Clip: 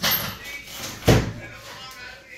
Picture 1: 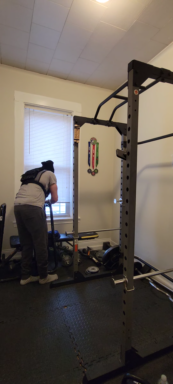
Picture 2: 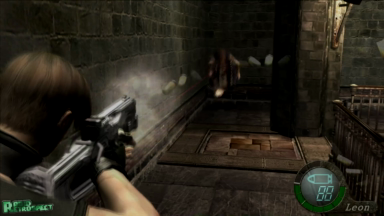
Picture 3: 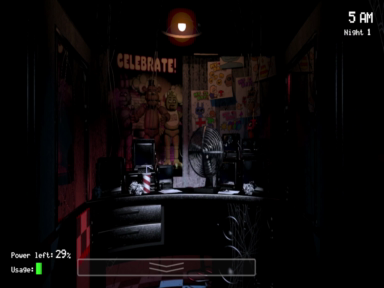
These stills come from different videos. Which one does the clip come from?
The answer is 1